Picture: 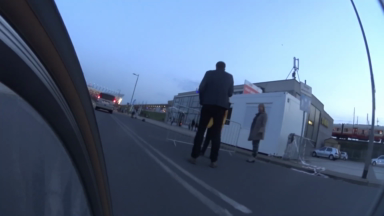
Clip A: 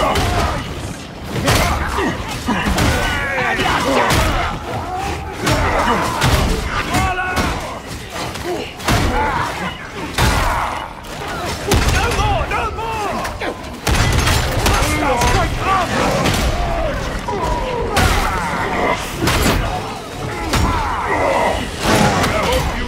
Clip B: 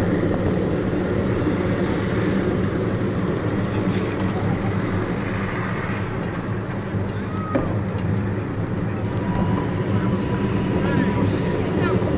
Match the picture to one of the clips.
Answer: B